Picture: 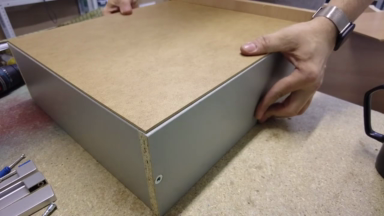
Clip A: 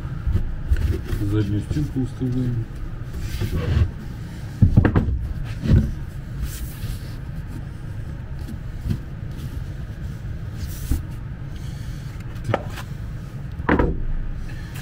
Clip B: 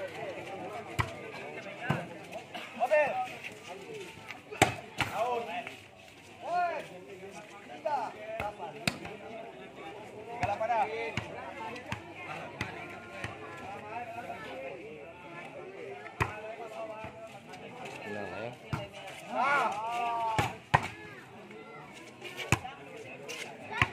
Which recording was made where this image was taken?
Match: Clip A